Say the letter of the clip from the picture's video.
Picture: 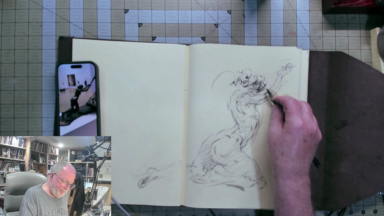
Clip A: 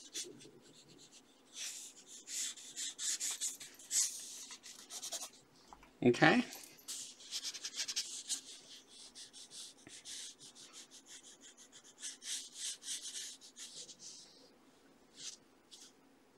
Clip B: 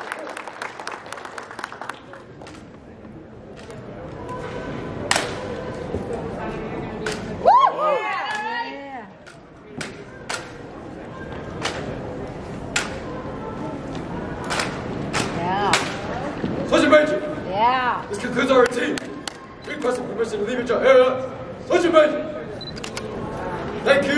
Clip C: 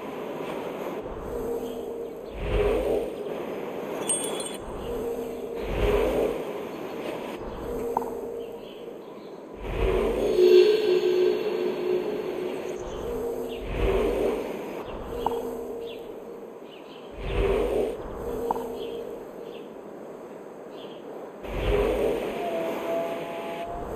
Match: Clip A